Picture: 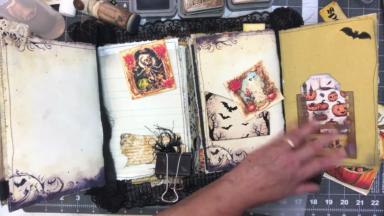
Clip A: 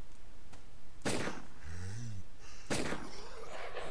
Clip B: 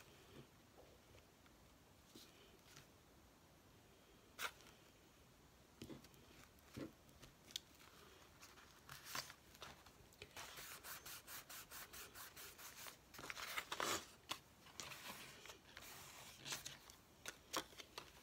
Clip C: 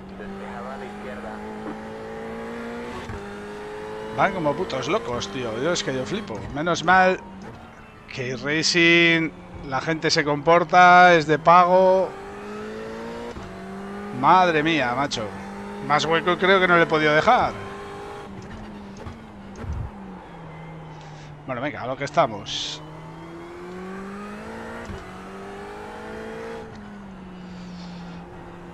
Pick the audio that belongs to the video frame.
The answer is B